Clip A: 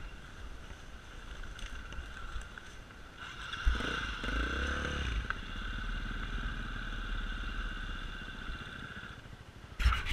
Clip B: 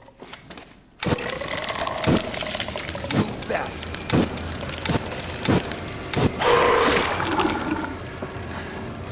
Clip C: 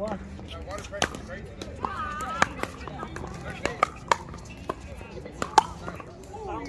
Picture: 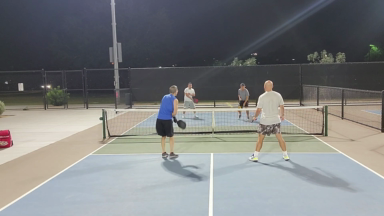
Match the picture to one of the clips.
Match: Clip C